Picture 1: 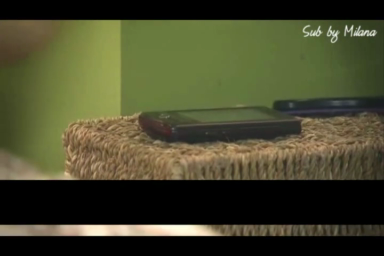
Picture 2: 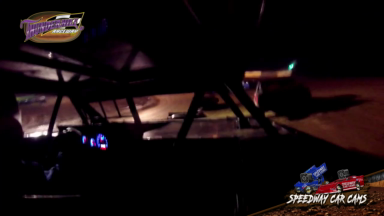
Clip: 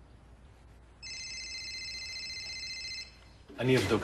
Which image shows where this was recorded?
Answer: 1